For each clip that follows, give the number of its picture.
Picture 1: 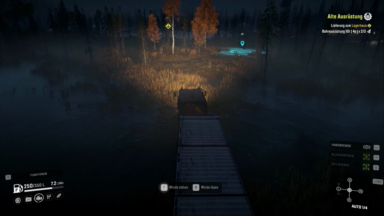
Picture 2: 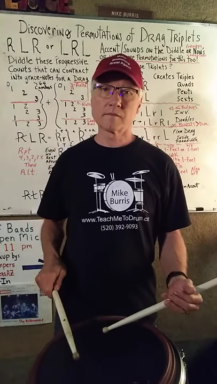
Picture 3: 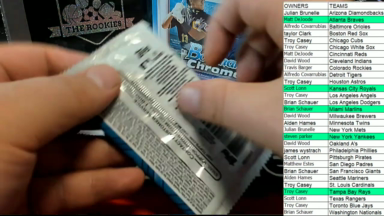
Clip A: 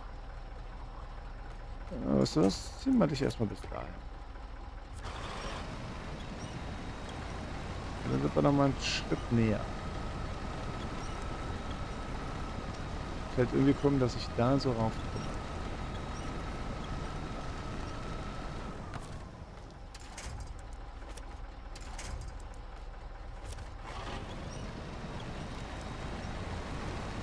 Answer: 1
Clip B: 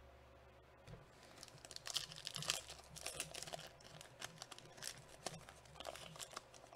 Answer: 3